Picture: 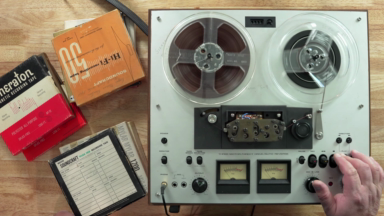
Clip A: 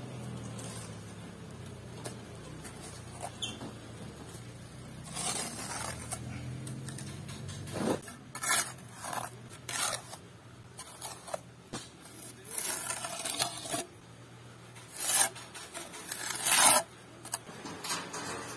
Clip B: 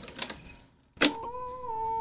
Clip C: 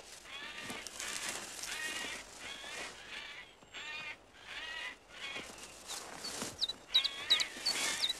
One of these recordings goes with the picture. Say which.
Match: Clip B